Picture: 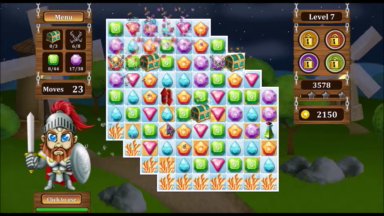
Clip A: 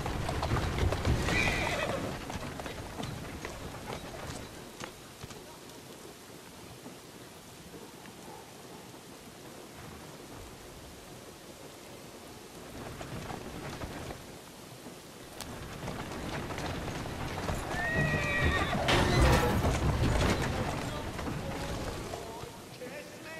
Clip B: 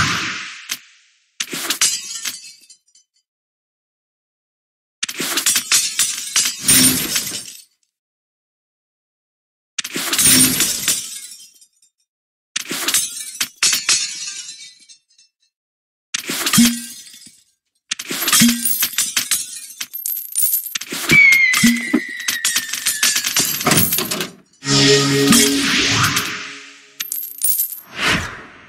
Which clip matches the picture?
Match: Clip B